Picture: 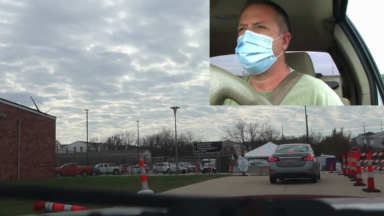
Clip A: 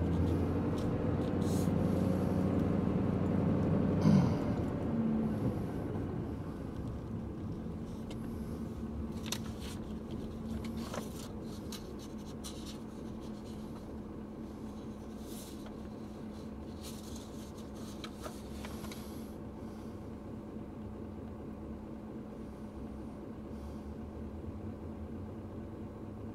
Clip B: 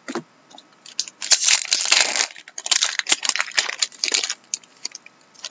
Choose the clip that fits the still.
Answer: A